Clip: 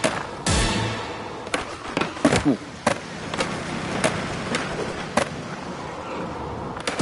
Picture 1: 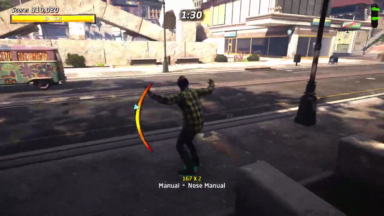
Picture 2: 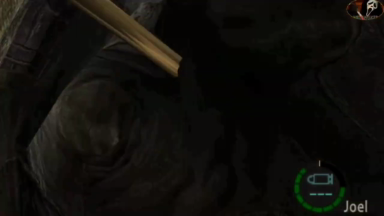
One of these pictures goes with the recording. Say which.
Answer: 1